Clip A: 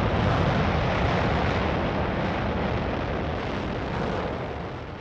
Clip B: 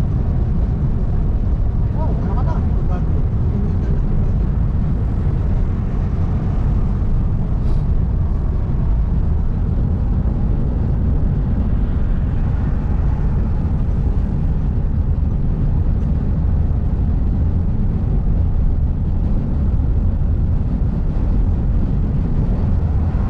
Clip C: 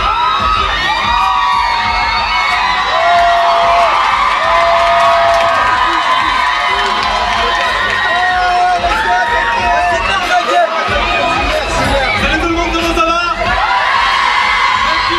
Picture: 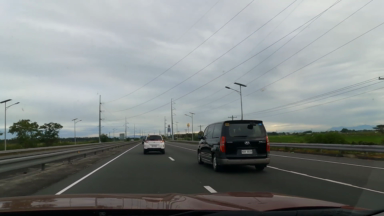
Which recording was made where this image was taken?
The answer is B